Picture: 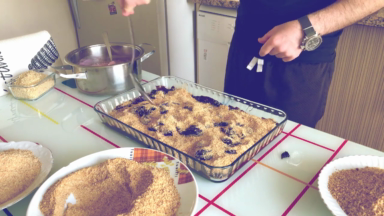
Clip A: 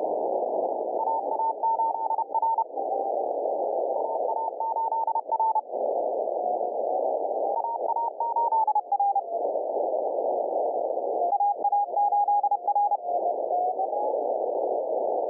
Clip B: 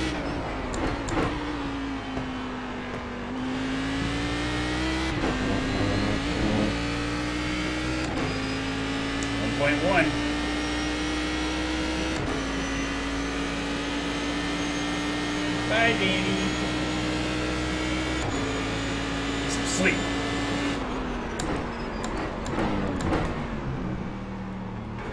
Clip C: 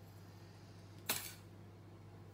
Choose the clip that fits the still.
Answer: C